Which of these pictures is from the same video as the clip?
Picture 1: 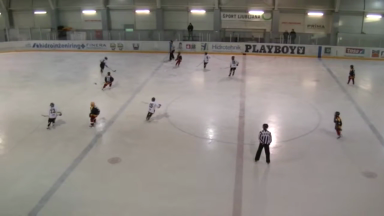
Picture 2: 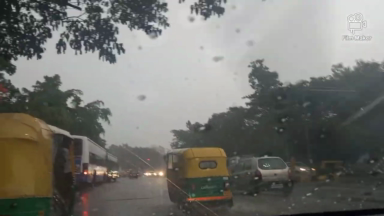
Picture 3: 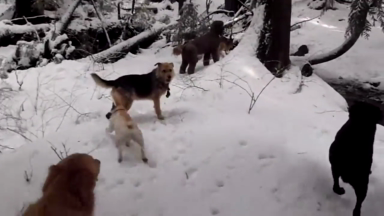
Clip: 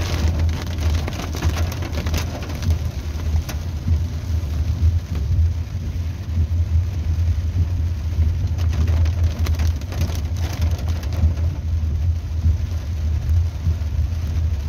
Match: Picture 2